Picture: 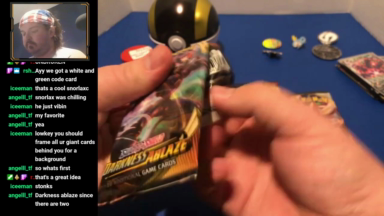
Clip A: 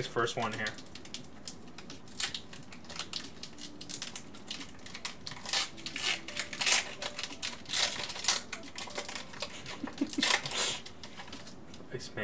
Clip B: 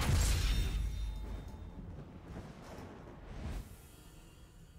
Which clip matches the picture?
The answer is A